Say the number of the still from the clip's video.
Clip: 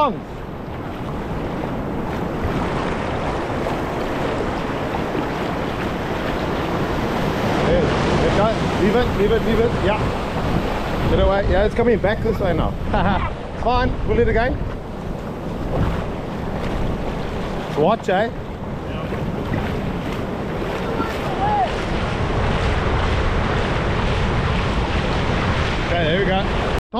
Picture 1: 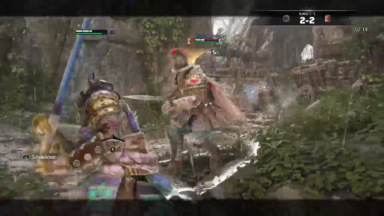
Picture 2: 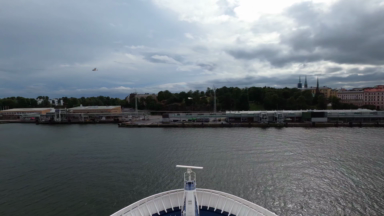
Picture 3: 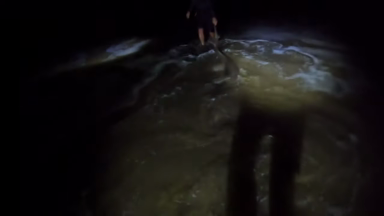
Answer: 3